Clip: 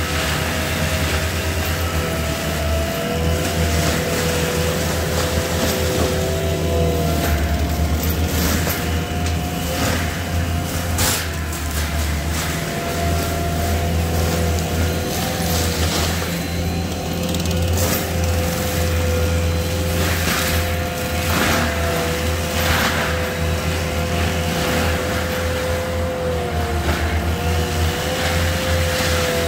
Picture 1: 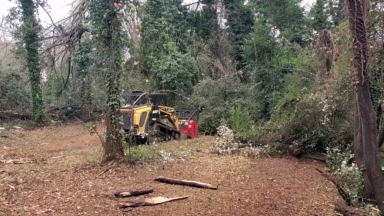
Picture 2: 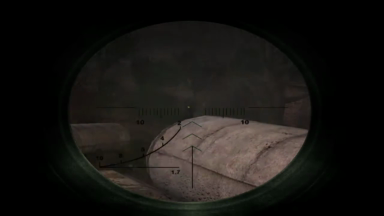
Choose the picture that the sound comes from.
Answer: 1